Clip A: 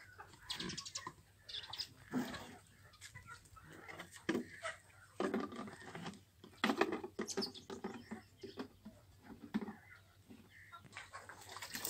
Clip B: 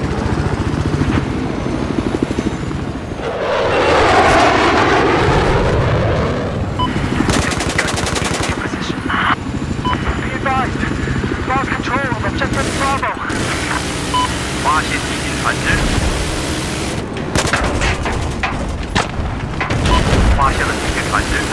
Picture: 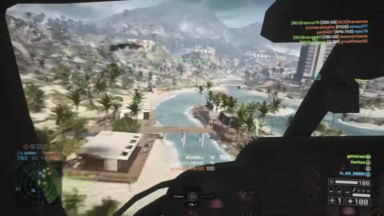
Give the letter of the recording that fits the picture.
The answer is B